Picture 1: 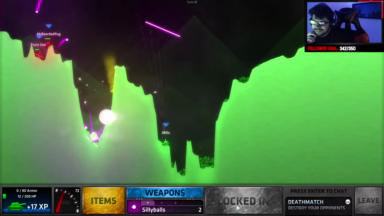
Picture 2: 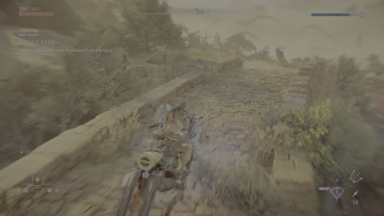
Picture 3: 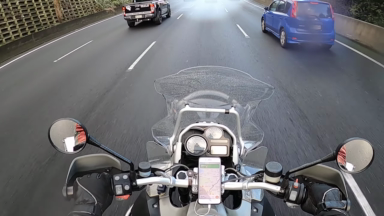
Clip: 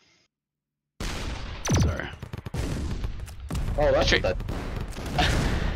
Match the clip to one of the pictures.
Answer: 1